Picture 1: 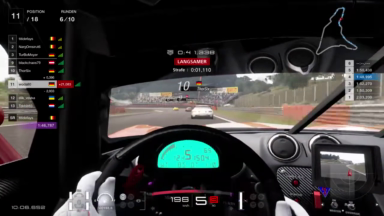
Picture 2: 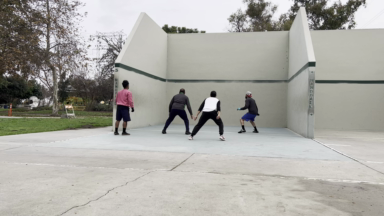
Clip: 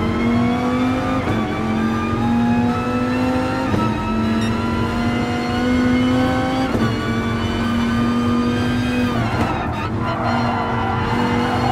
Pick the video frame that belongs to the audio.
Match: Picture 1